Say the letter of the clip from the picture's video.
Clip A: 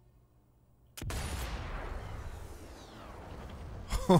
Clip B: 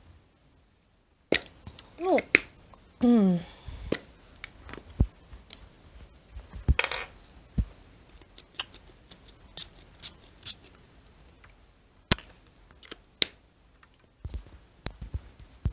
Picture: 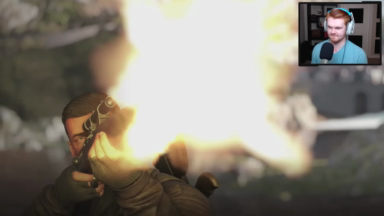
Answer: A